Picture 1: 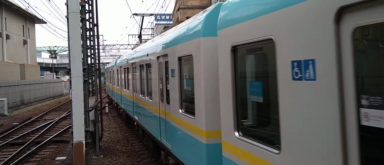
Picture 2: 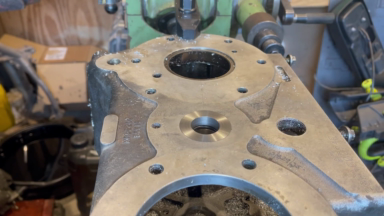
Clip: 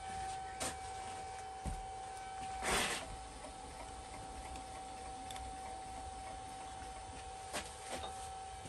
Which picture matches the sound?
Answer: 2